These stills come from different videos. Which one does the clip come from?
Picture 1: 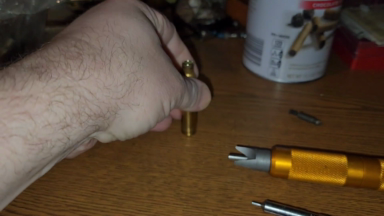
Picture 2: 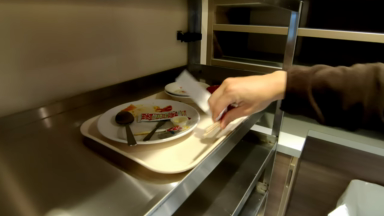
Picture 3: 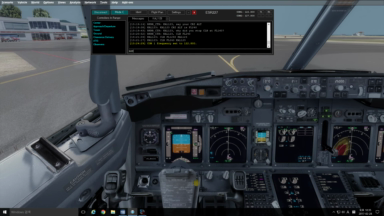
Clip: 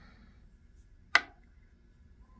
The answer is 1